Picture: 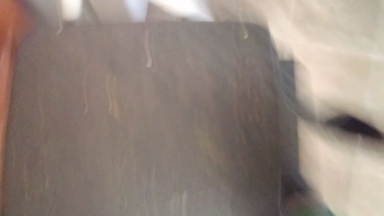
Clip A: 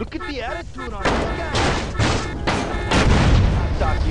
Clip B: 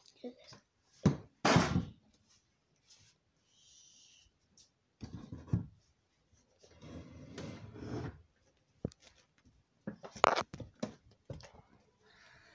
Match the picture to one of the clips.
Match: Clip B